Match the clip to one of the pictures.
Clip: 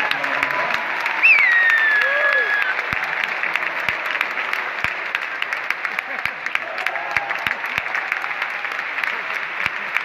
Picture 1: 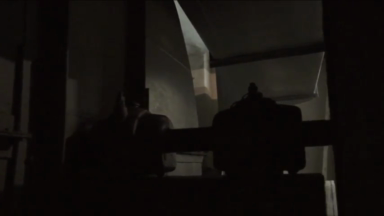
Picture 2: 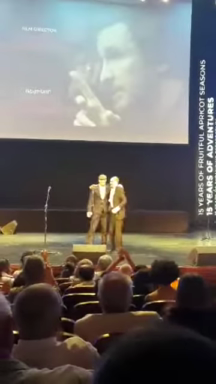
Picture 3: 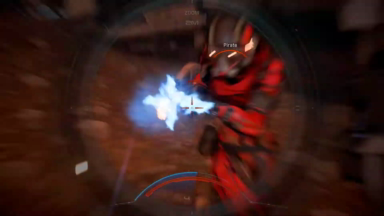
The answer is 2